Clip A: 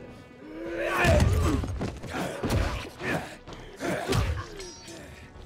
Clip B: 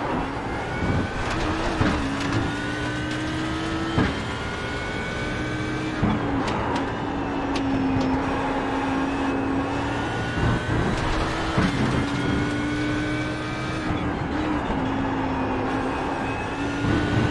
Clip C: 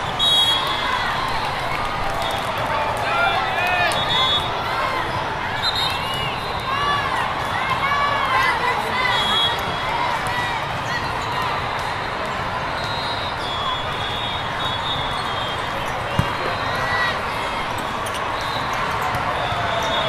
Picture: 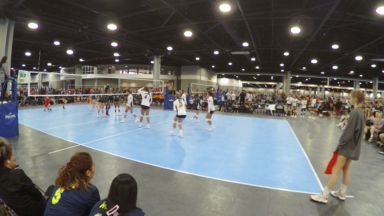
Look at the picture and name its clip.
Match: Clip C